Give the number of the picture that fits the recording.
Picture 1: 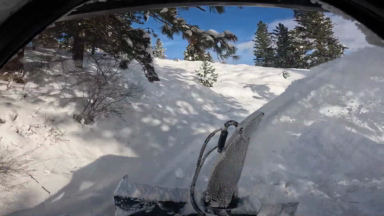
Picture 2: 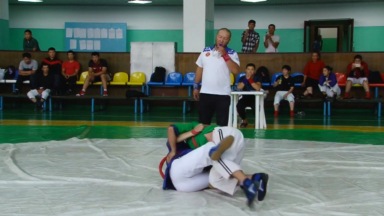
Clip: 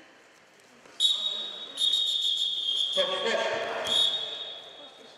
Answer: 2